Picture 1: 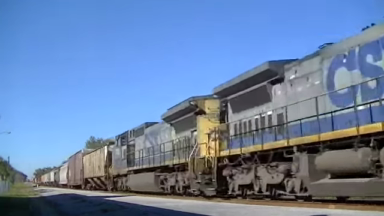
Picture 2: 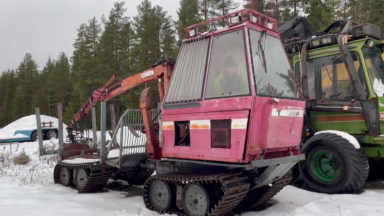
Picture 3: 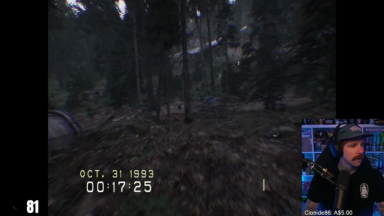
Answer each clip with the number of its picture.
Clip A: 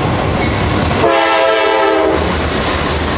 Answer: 1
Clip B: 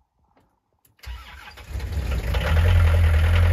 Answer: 2